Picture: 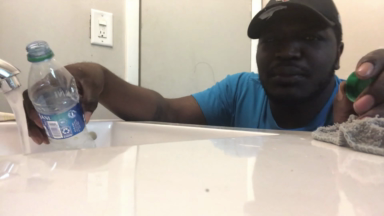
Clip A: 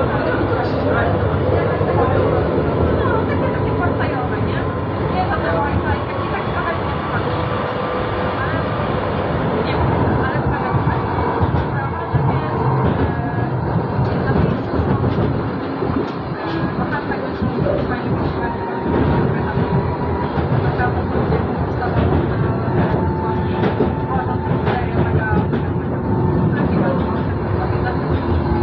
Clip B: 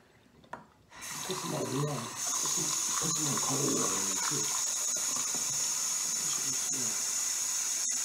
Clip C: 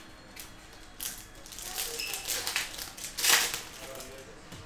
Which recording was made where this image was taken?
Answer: B